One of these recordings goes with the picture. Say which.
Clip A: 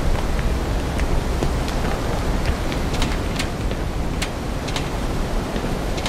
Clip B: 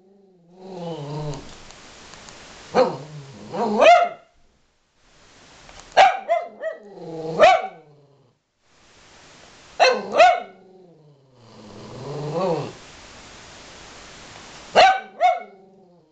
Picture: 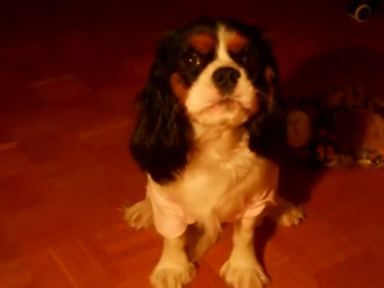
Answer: B